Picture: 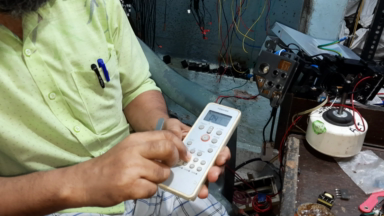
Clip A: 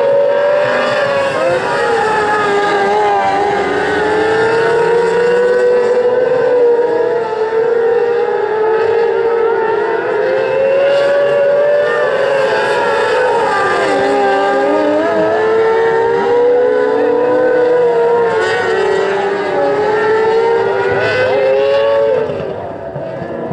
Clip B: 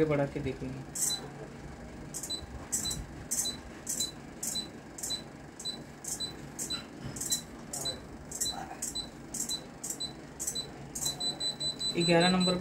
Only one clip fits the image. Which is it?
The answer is B